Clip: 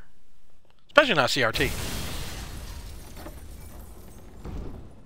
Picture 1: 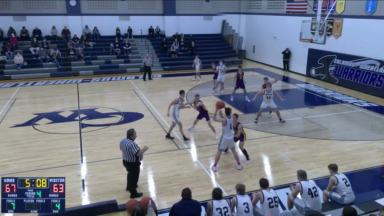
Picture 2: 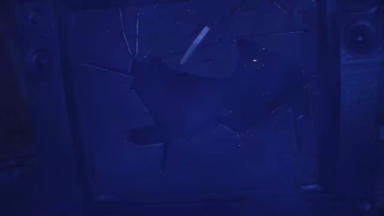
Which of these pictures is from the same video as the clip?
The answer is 2